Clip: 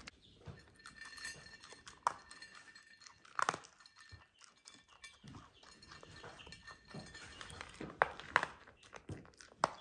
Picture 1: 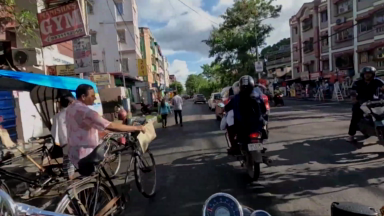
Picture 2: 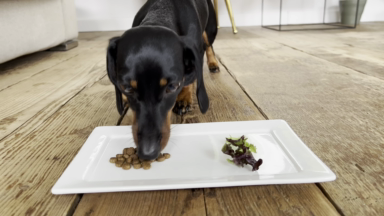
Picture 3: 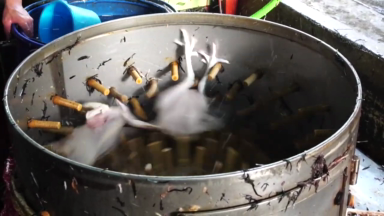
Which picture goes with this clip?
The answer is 2